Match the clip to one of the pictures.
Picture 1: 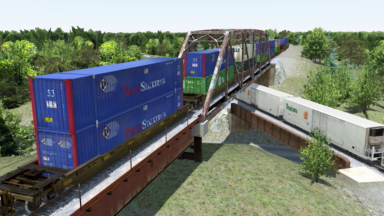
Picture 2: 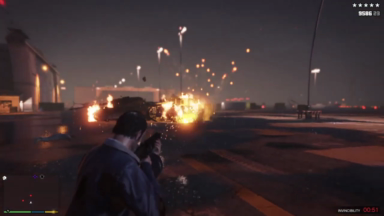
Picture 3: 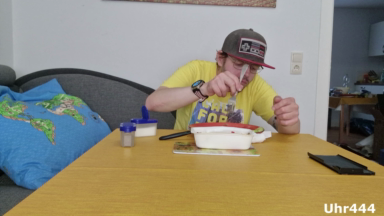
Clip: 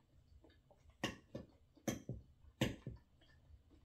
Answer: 3